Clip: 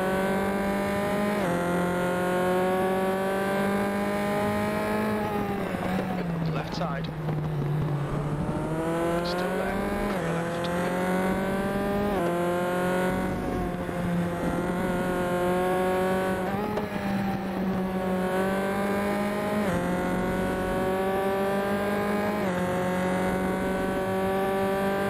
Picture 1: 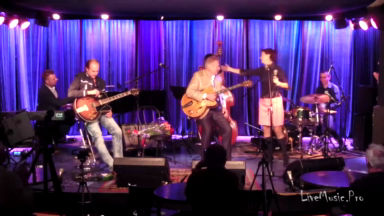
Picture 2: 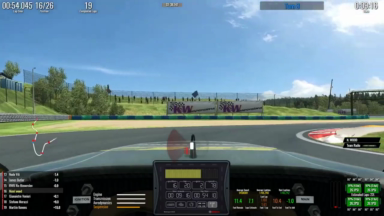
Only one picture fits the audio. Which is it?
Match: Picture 2